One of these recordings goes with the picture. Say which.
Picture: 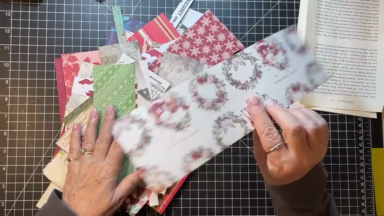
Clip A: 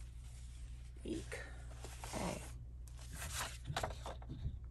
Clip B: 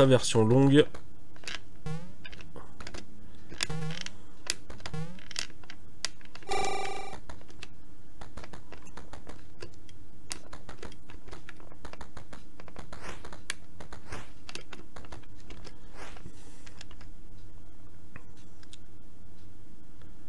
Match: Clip A